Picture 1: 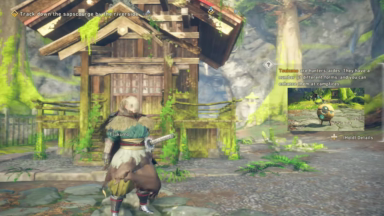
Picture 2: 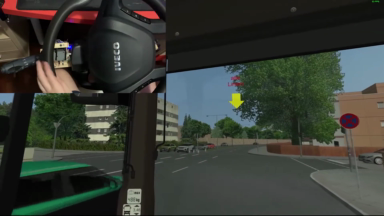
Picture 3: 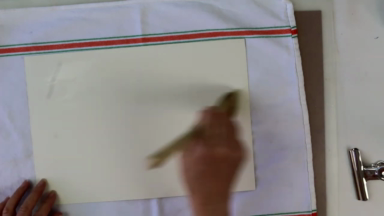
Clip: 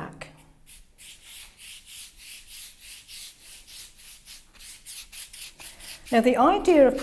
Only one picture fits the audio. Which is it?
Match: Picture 3